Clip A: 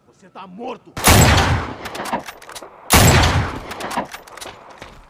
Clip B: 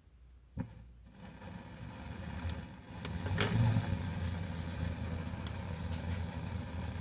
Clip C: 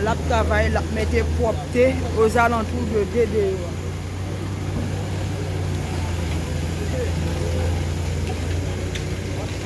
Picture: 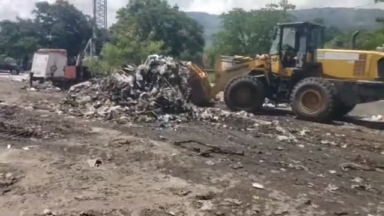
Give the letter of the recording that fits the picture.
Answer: C